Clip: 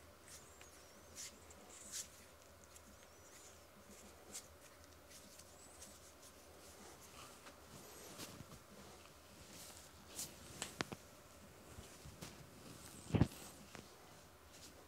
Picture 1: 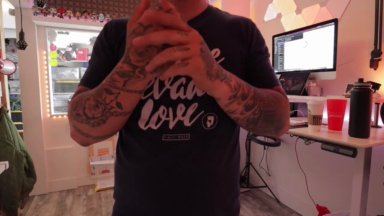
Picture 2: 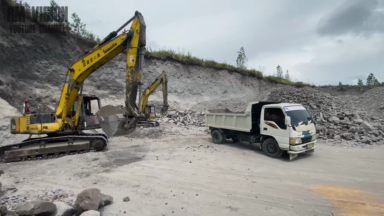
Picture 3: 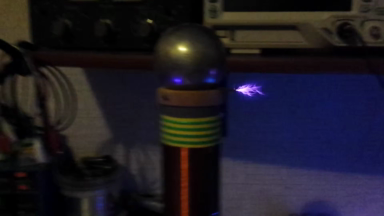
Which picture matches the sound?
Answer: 1